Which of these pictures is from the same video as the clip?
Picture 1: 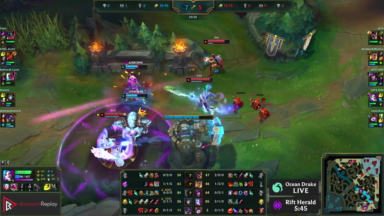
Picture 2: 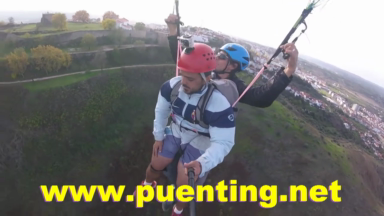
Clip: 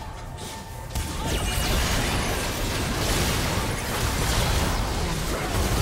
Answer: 1